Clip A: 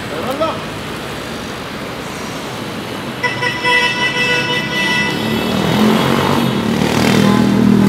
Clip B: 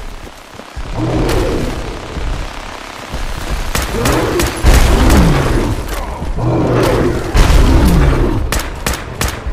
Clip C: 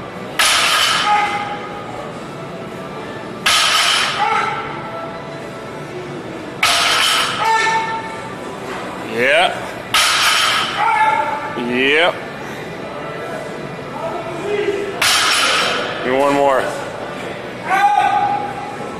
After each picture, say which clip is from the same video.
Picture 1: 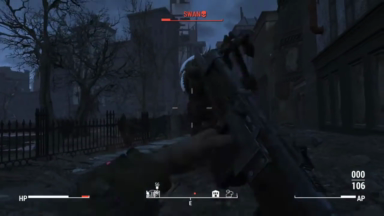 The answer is B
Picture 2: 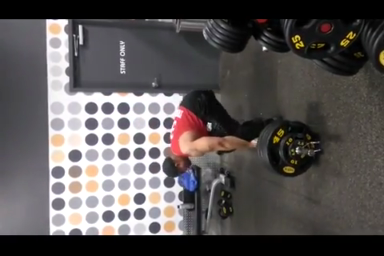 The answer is C